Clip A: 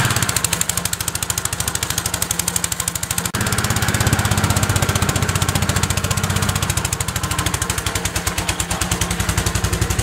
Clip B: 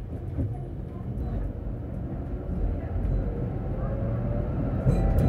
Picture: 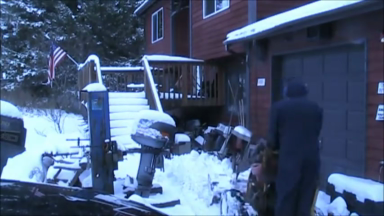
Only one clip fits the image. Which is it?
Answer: A